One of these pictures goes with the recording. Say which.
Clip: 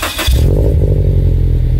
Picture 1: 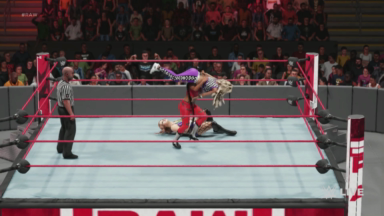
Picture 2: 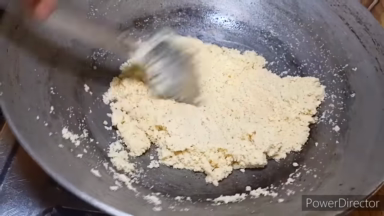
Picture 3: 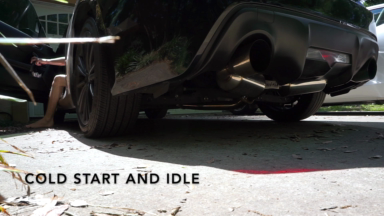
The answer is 3